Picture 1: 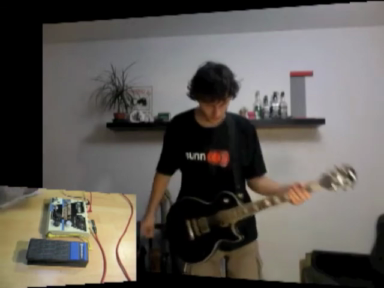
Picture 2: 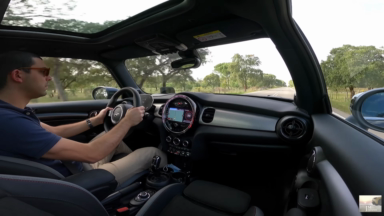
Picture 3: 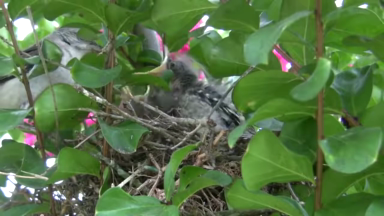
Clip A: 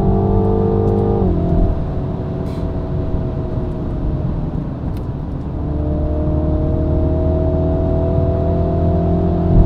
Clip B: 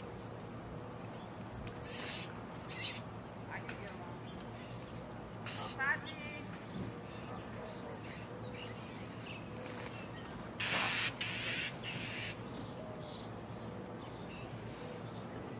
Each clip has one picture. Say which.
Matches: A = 2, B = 3